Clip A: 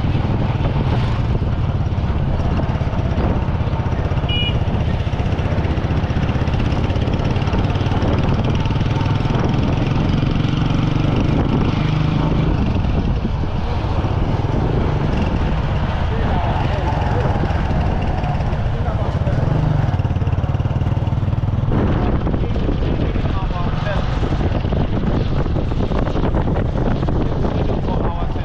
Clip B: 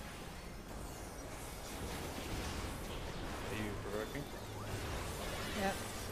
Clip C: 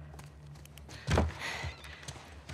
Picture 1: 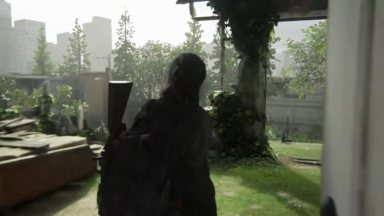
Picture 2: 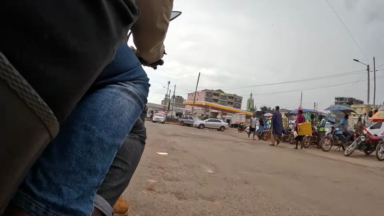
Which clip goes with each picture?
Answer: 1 C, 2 A